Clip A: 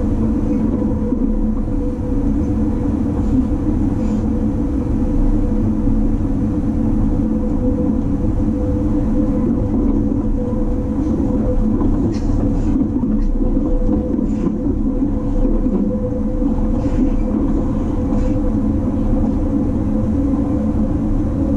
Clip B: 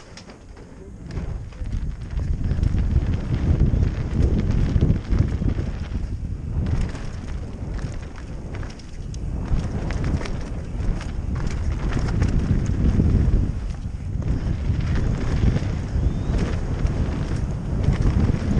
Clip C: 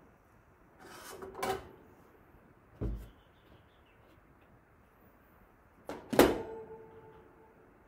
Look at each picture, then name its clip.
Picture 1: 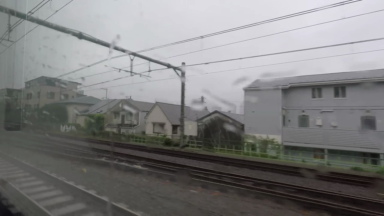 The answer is A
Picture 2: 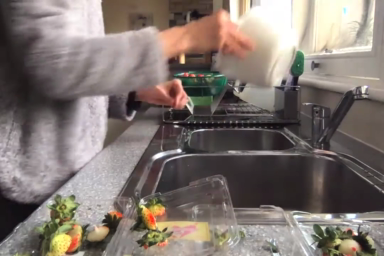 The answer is C